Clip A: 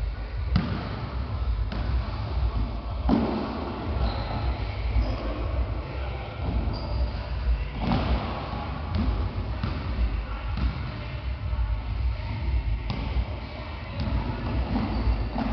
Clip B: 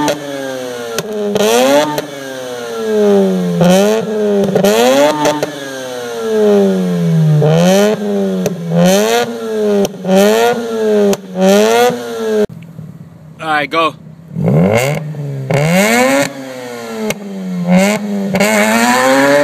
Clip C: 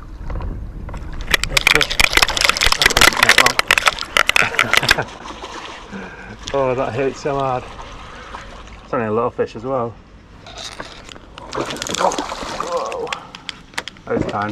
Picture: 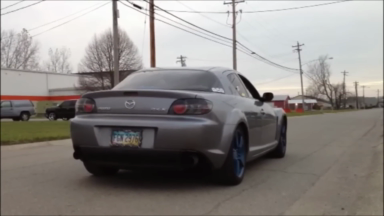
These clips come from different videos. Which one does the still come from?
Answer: B